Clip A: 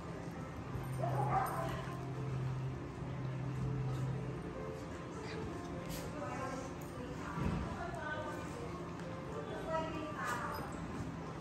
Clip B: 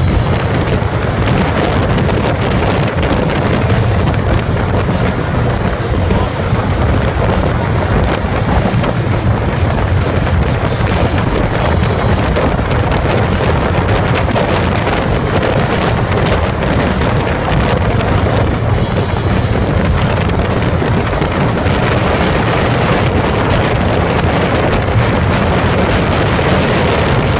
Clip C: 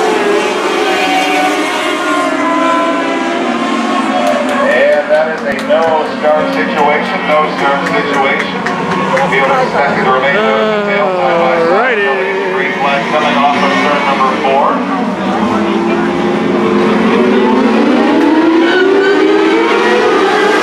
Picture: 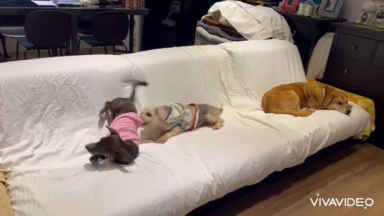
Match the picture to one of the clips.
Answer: A